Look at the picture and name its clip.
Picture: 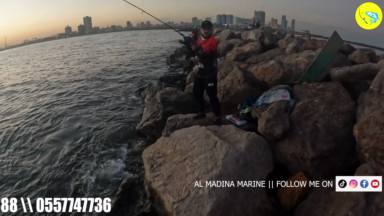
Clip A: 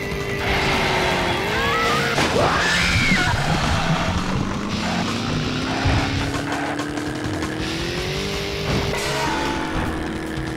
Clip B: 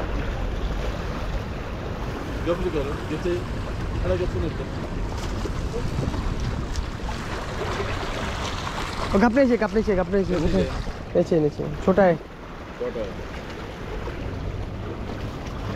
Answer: B